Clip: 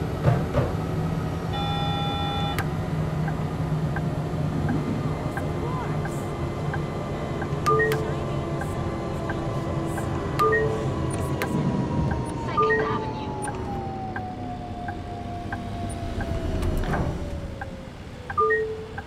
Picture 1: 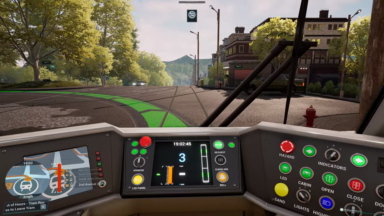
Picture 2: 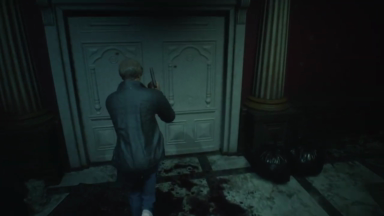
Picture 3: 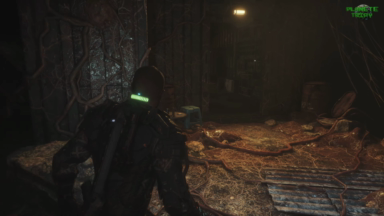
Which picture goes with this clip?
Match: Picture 1